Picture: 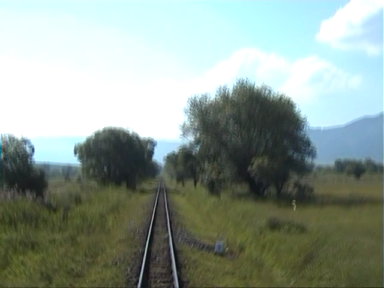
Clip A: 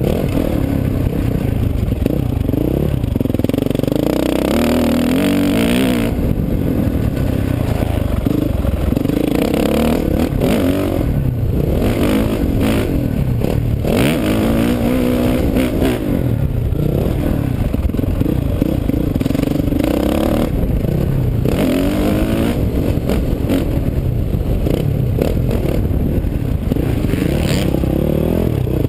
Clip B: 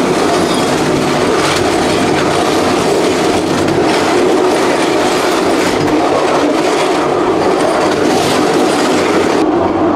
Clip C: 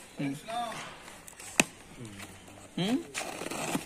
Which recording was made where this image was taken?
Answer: B